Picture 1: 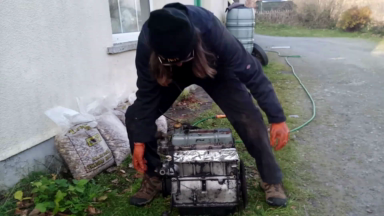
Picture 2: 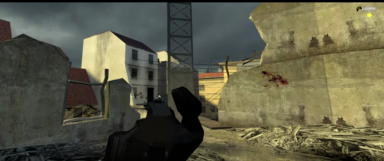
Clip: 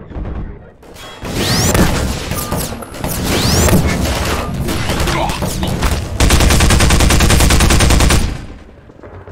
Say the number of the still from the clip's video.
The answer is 2